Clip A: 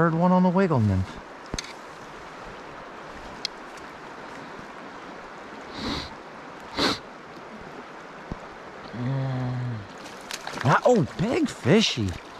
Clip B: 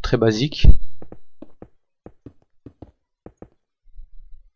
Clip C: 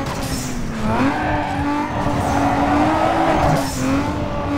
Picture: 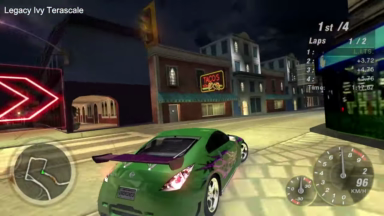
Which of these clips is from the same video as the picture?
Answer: C